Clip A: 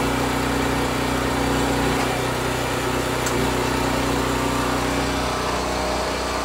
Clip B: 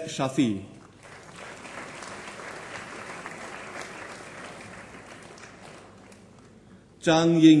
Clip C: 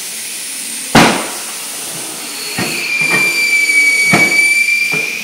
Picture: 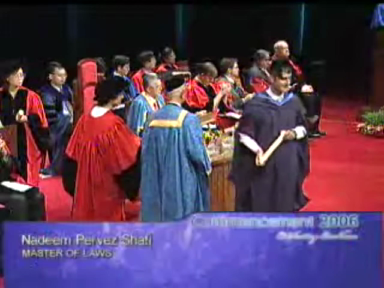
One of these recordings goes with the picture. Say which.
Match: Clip B